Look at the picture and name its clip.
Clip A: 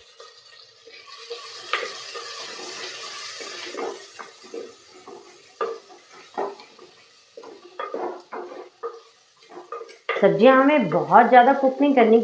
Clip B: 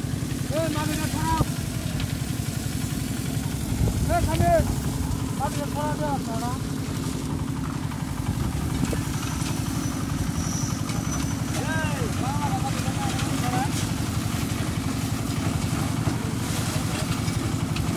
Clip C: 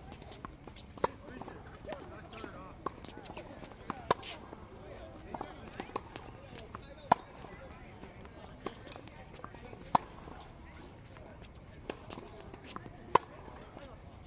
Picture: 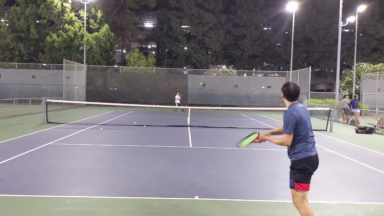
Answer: C